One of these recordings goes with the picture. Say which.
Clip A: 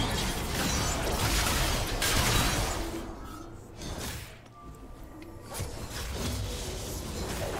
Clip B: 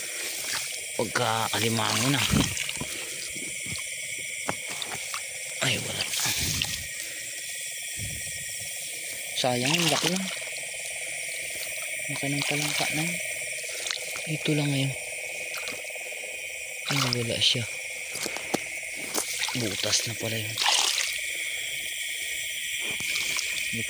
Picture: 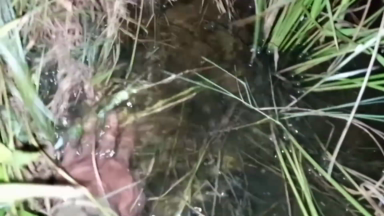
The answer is B